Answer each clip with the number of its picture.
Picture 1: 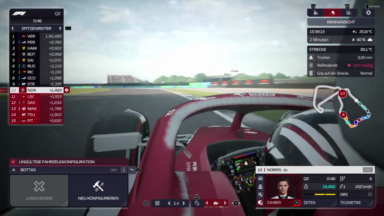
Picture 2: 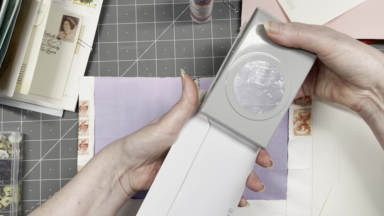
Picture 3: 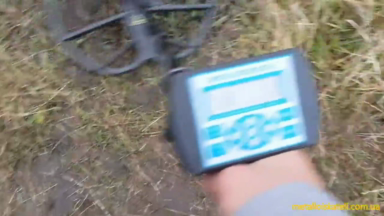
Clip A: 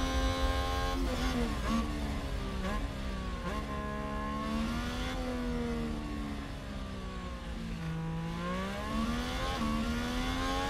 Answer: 1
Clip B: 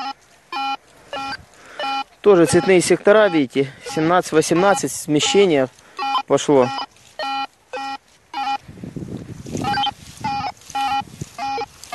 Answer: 3